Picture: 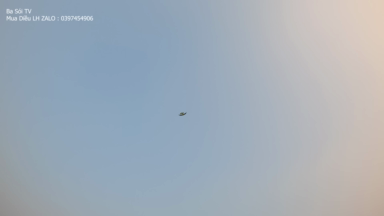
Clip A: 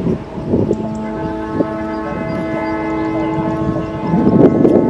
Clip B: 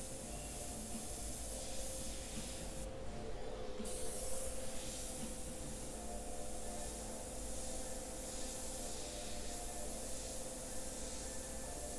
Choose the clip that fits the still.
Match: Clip A